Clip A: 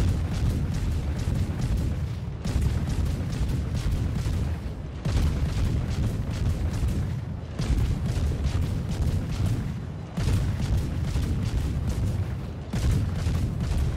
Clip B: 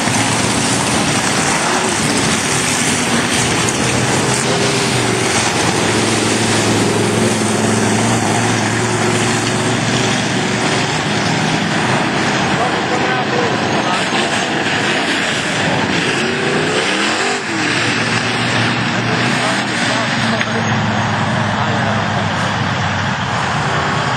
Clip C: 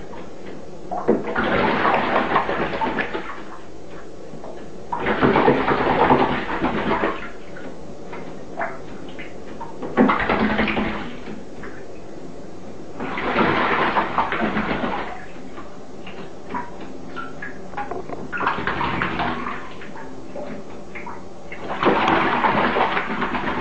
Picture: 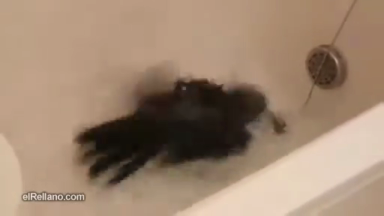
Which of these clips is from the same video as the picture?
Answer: C